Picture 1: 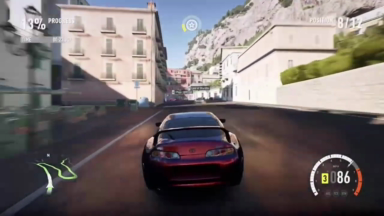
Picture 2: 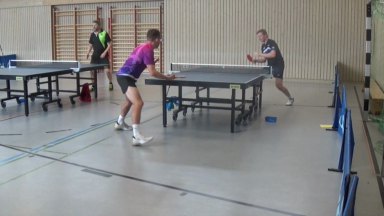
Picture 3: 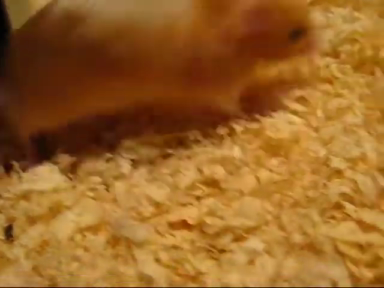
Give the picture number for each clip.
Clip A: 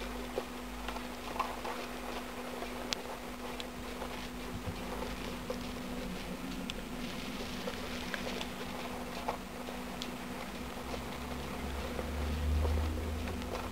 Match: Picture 3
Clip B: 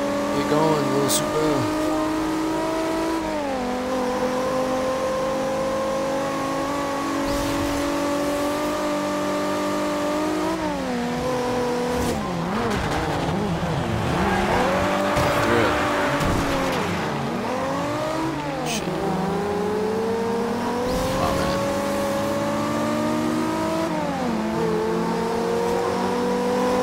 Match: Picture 1